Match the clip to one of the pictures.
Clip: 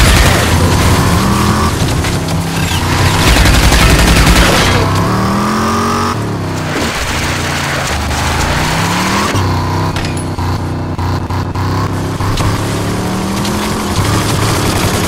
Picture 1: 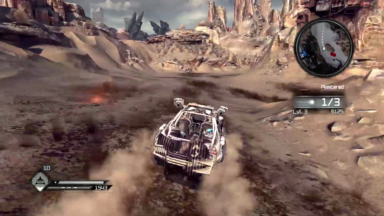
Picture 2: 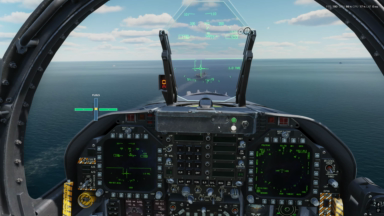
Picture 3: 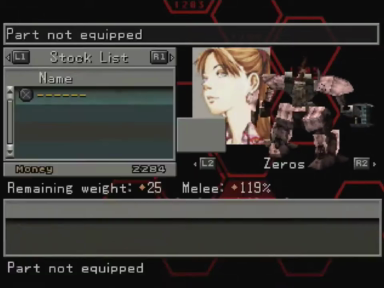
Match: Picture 1